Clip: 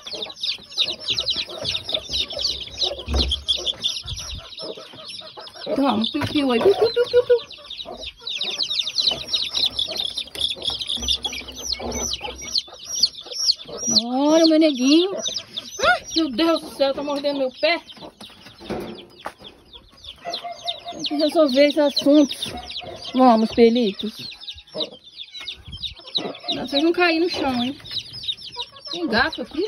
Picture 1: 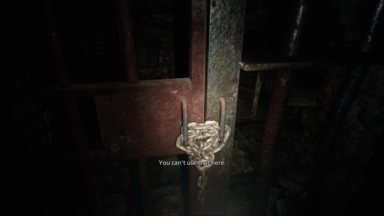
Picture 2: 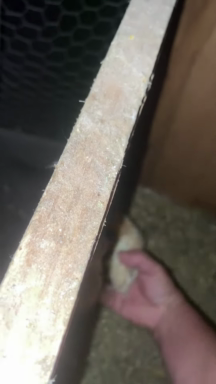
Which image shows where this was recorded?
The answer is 2